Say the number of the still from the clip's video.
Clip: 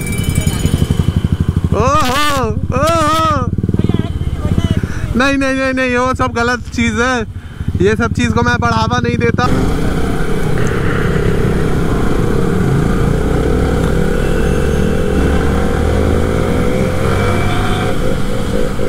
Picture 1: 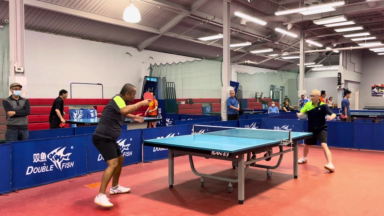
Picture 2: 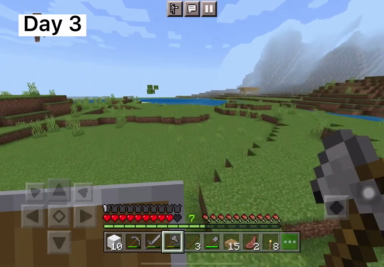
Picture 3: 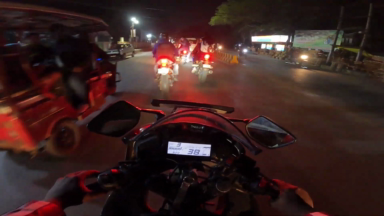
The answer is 3